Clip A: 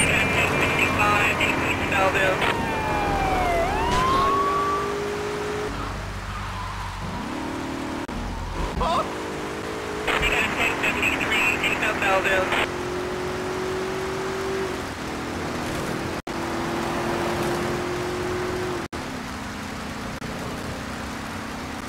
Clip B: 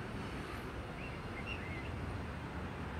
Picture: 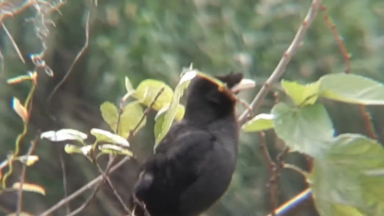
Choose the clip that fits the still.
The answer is B